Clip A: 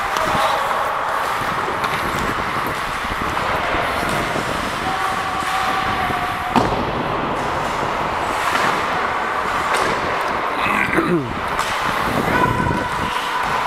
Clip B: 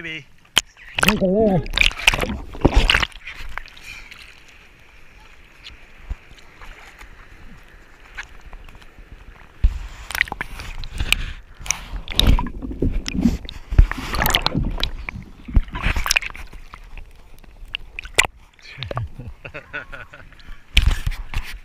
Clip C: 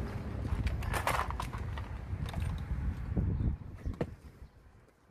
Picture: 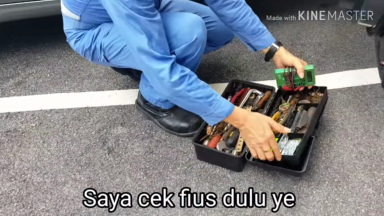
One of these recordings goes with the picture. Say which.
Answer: C